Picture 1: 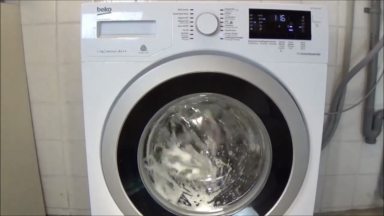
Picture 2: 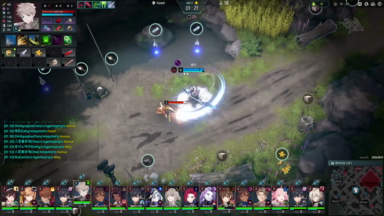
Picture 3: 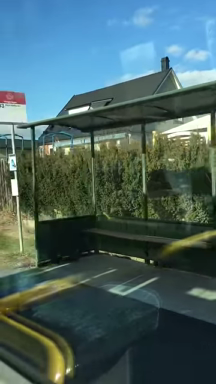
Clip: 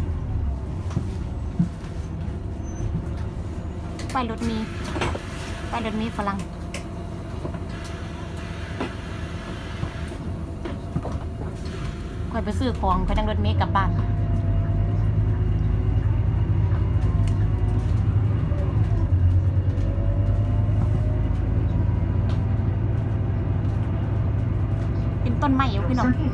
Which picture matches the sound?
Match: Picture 3